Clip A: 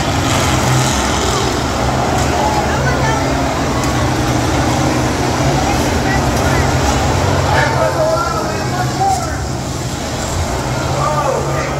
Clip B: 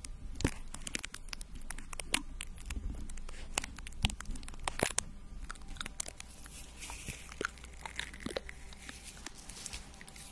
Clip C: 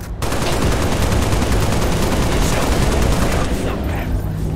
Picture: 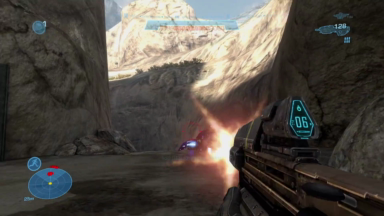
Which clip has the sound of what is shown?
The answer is C